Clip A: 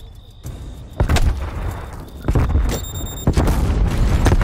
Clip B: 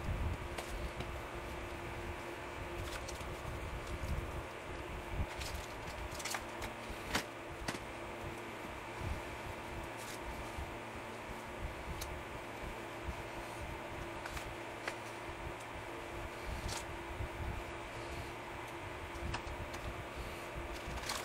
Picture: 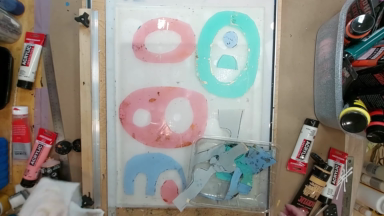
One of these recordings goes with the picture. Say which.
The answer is B